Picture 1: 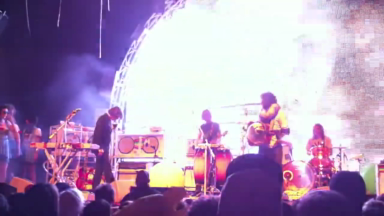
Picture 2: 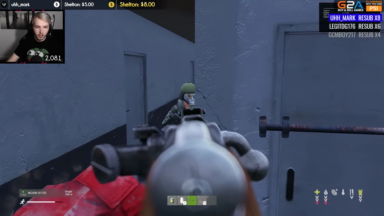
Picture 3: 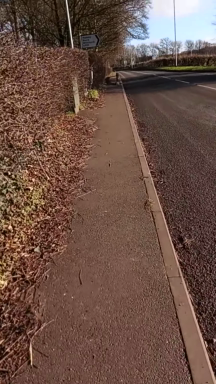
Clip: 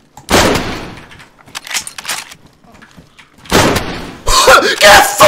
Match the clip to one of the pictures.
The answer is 2